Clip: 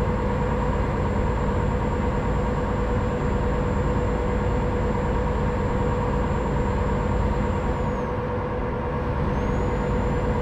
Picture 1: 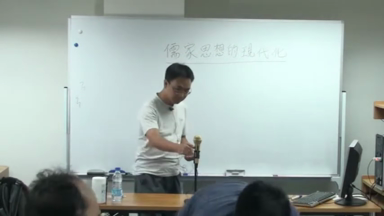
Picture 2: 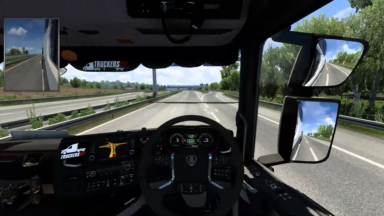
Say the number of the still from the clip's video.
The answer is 2